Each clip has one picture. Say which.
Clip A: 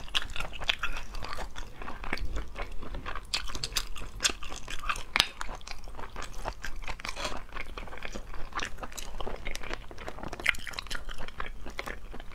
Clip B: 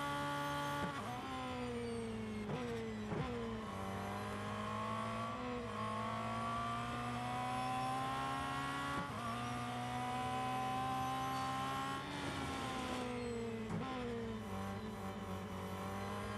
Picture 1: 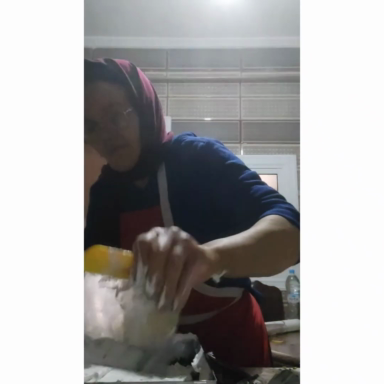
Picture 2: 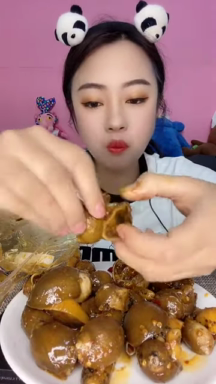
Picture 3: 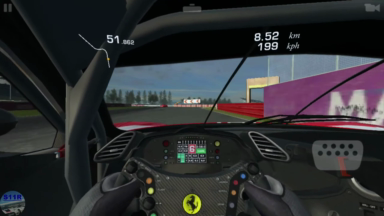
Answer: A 2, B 3